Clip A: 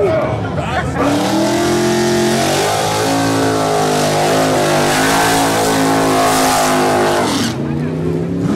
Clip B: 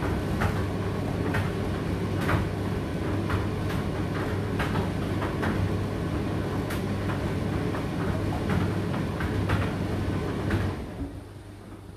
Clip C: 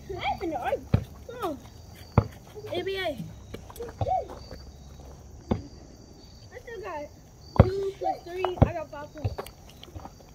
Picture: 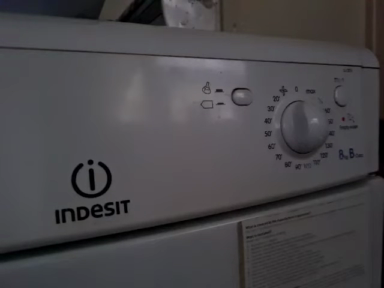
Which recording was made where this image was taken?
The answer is B